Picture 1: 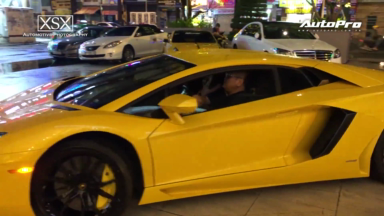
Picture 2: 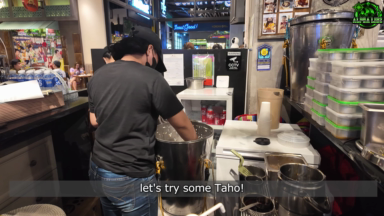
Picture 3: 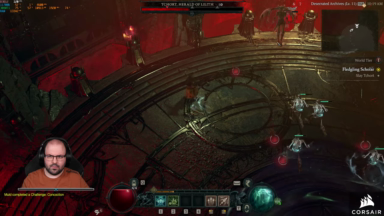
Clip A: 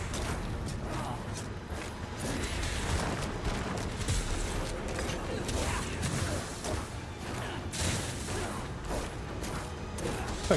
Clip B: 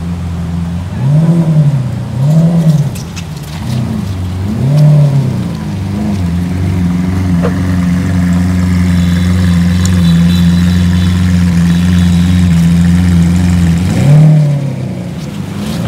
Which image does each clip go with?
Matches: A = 3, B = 1